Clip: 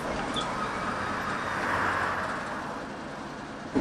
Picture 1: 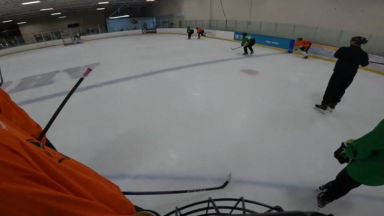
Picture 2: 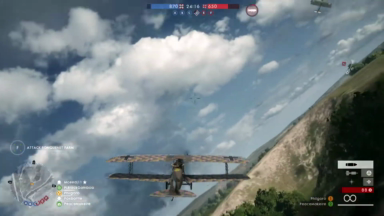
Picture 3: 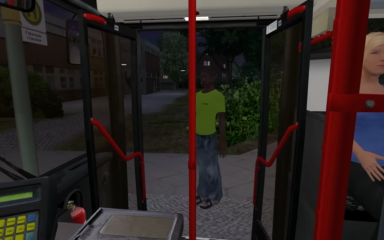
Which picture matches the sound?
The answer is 3